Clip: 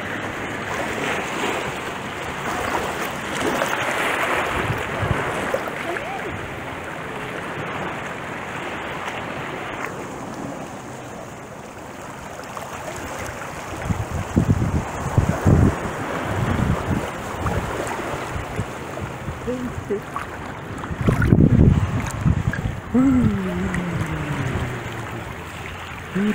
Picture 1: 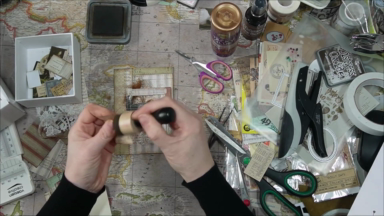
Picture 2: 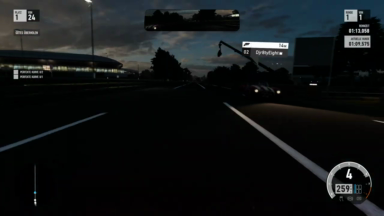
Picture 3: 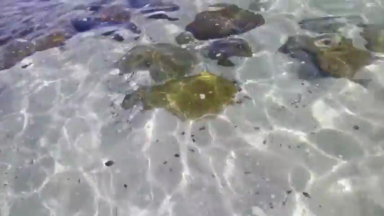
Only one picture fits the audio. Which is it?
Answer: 3